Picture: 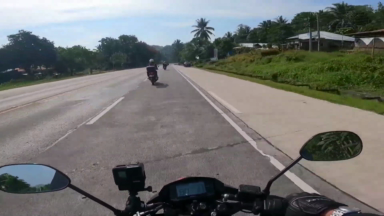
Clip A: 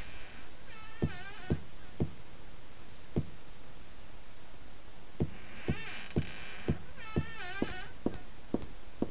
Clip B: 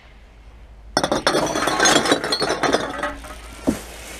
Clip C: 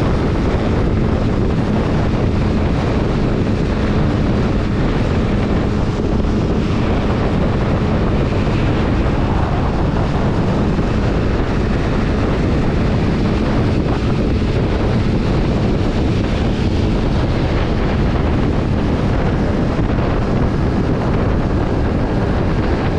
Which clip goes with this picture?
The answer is C